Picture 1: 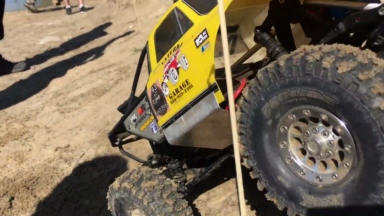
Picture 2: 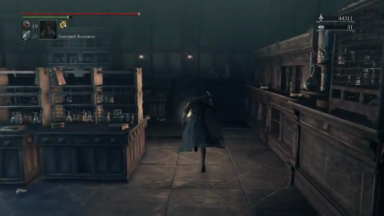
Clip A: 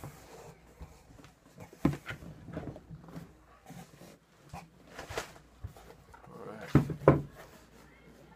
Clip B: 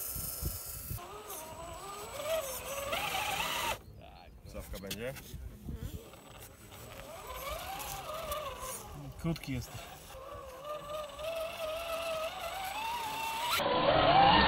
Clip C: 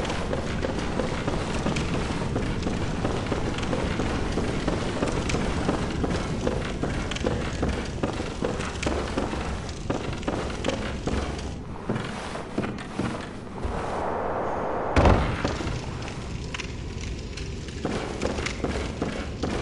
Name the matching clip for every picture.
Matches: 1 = B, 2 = C